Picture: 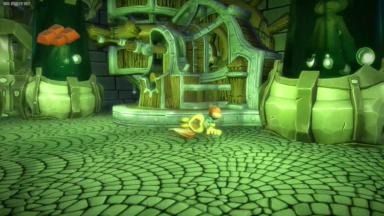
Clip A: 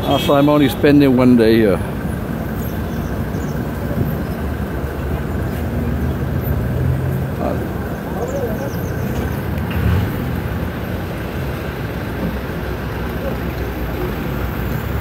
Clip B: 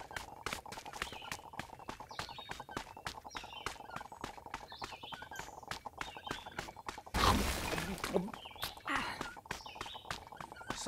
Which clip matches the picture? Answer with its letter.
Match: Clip B